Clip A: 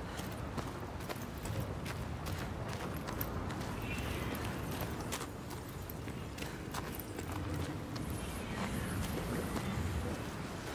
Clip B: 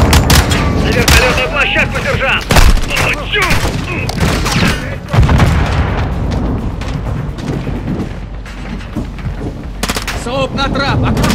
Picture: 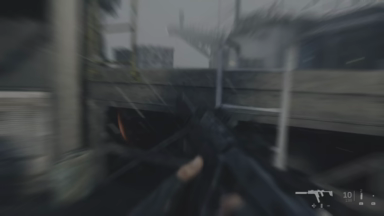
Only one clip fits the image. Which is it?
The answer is B